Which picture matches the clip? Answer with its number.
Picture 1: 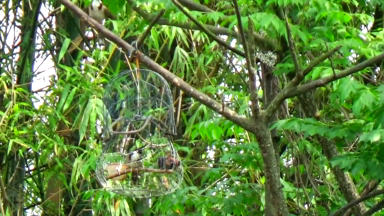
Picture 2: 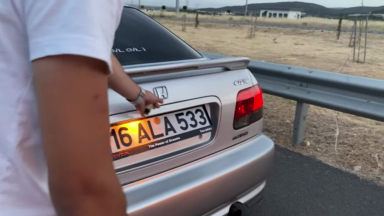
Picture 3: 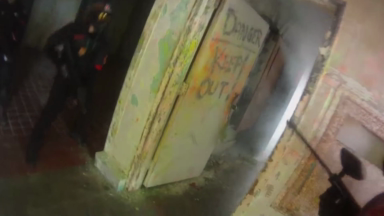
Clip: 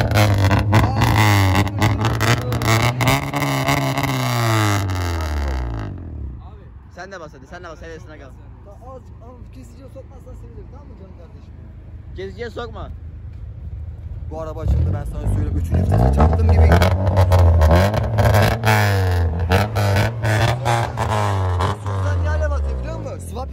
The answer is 2